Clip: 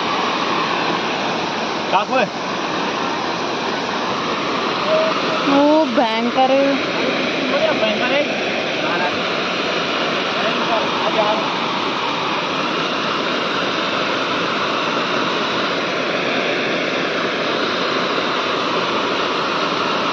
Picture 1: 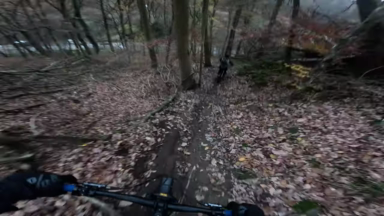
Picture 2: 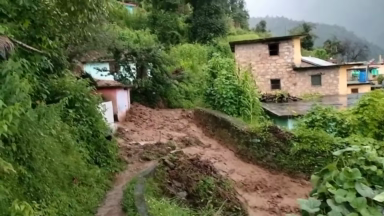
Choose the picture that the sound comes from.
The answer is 2